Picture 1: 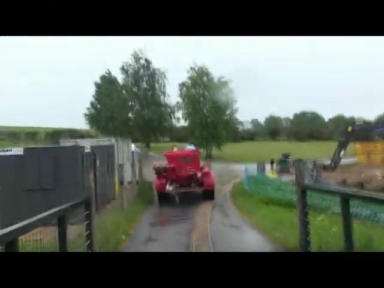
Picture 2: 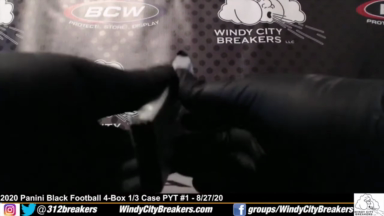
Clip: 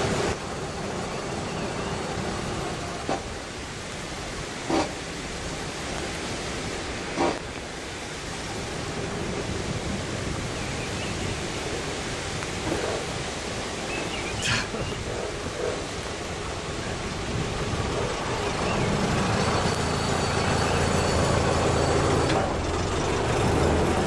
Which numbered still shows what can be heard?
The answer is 1